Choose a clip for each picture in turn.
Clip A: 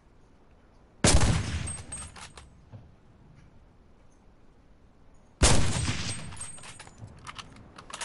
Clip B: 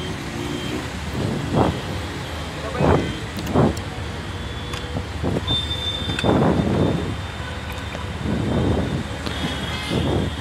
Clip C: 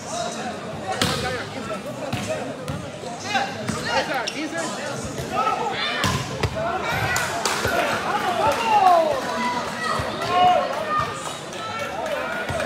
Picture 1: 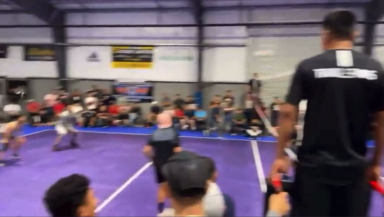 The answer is C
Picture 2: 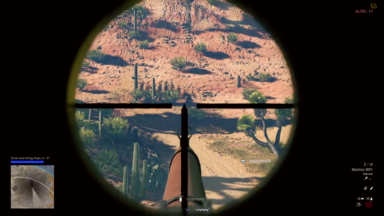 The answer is A